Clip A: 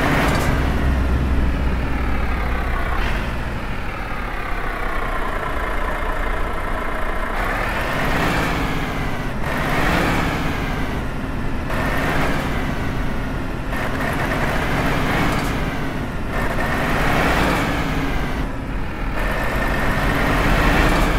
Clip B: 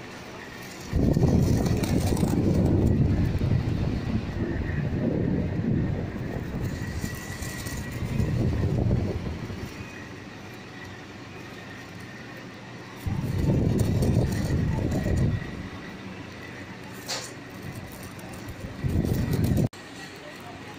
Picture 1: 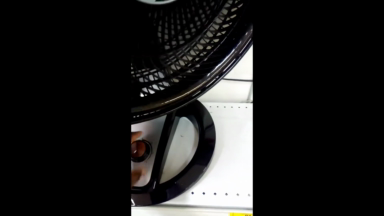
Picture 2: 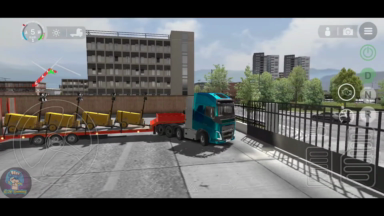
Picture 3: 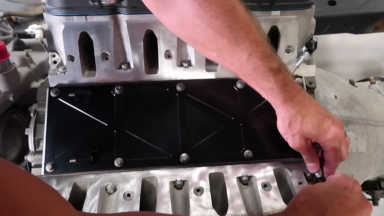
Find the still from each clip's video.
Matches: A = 2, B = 1